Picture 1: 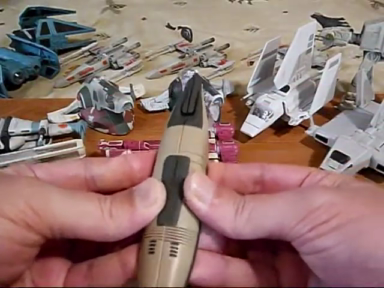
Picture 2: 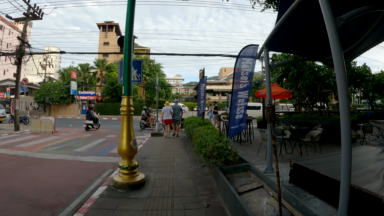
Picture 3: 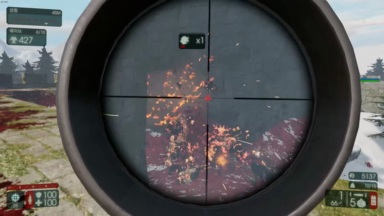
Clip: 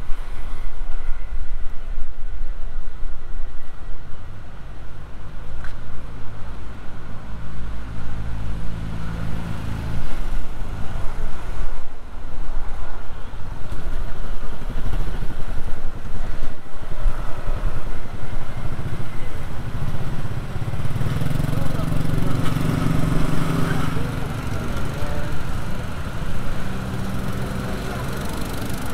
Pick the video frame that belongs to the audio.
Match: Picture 2